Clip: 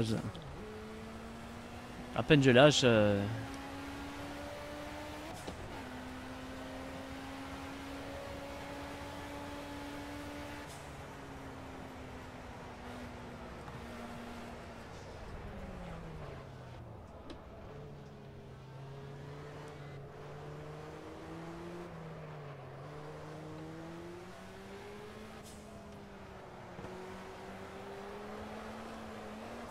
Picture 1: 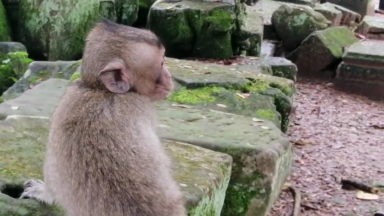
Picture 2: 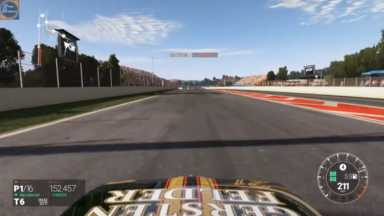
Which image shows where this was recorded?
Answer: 2